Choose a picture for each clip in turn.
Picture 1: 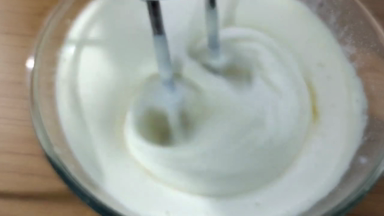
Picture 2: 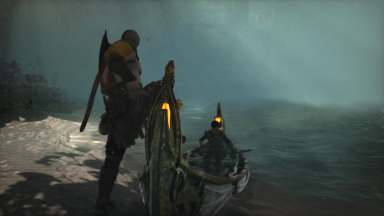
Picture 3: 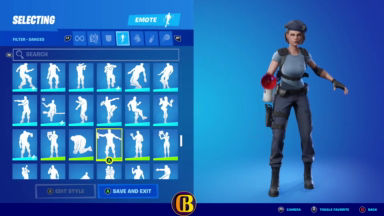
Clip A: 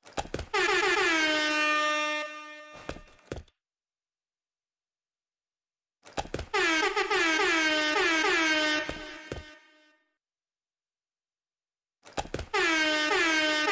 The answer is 3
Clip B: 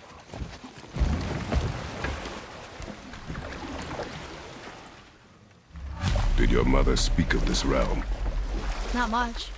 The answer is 2